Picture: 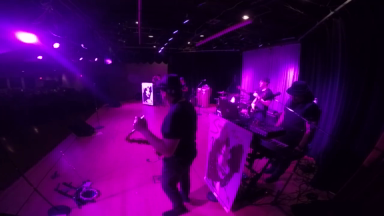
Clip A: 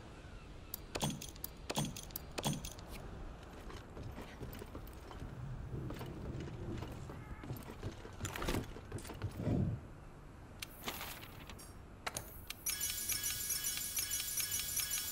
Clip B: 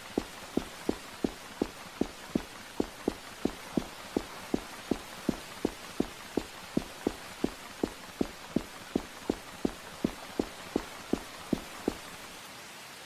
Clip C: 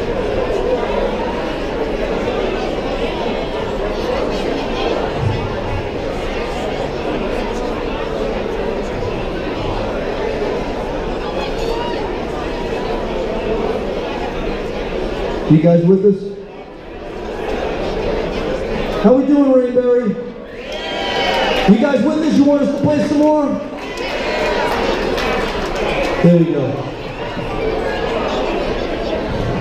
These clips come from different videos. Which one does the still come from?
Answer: C